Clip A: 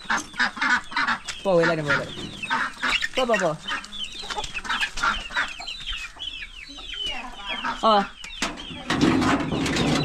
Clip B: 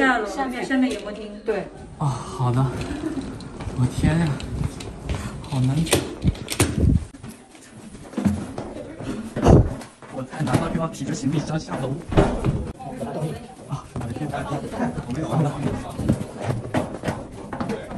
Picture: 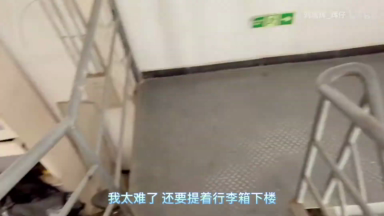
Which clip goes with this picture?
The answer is B